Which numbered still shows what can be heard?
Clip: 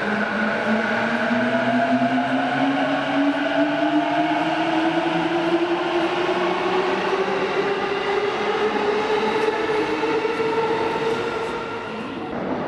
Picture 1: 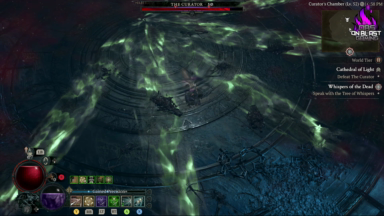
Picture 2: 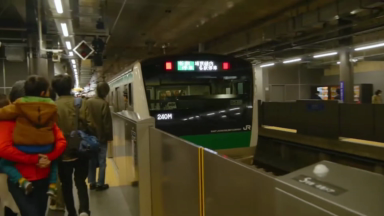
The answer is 2